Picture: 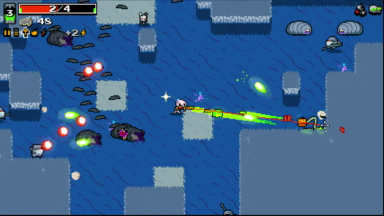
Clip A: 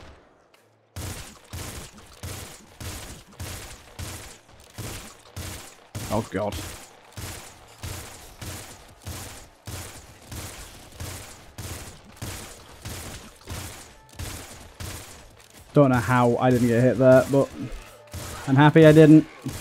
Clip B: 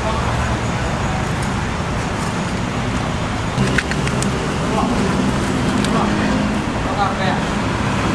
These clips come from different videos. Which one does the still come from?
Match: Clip A